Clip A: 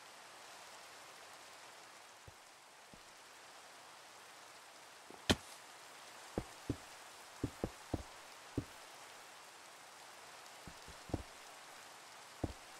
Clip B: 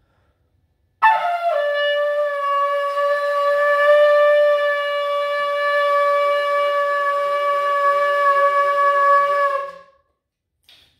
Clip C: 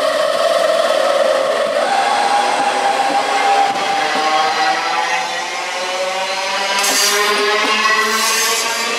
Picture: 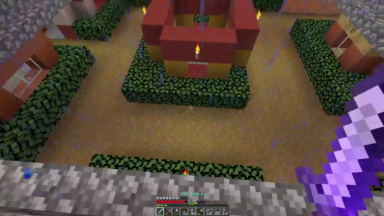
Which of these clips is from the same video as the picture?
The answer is A